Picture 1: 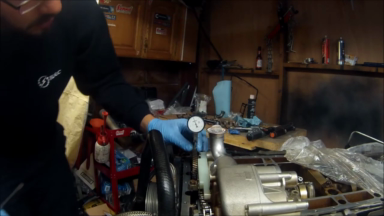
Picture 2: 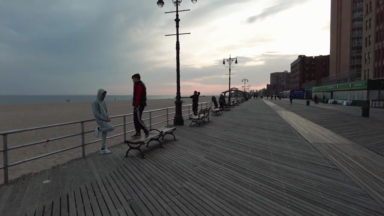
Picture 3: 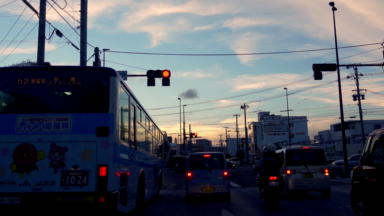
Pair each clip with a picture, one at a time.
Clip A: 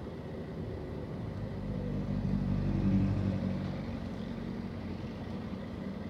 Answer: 3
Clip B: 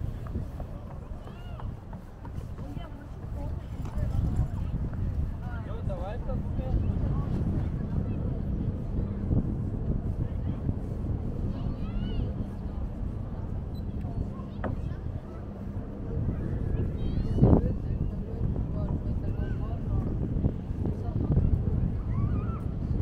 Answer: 2